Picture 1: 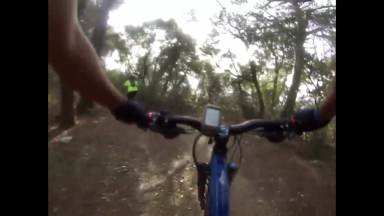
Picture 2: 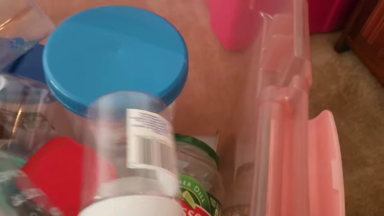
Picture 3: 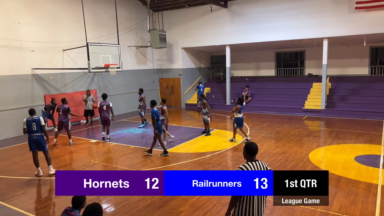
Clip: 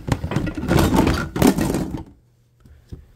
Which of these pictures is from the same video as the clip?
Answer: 2